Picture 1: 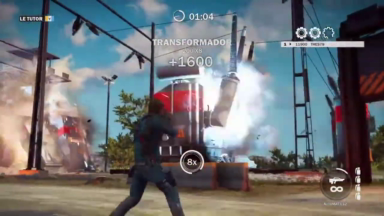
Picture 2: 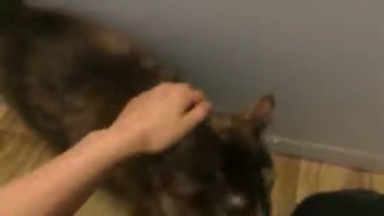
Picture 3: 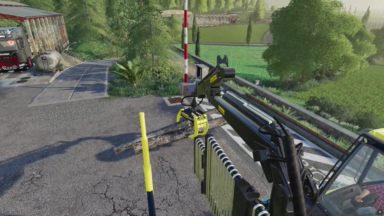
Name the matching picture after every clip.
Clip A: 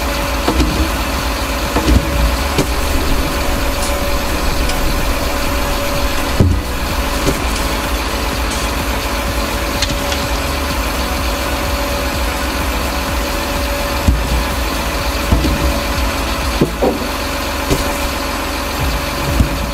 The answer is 3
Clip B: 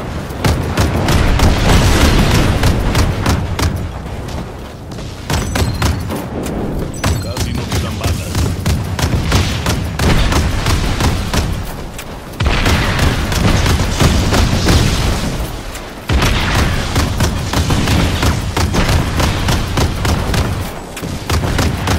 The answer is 1